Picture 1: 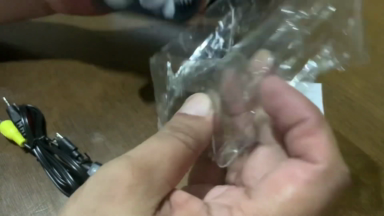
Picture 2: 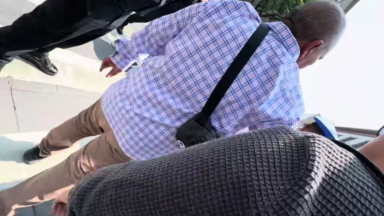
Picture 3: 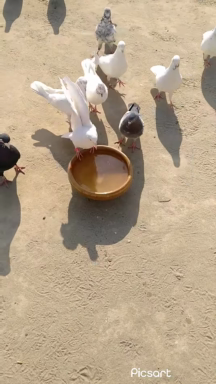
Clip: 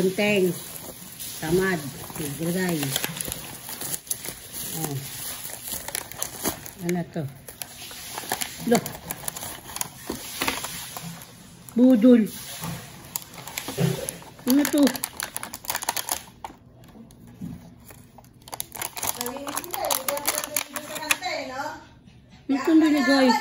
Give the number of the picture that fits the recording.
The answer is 1